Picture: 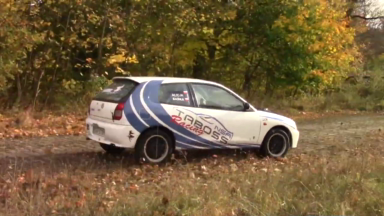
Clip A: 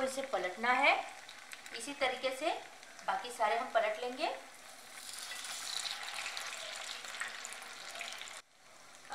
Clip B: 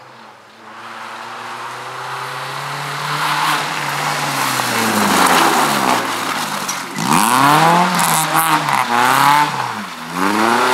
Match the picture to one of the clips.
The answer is B